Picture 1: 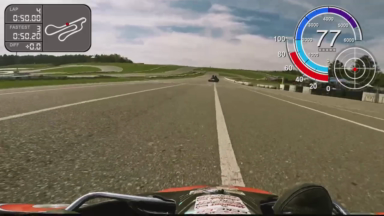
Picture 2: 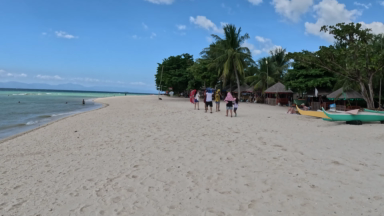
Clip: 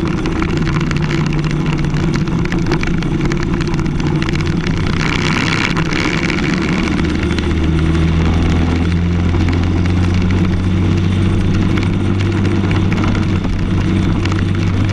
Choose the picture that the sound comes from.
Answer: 1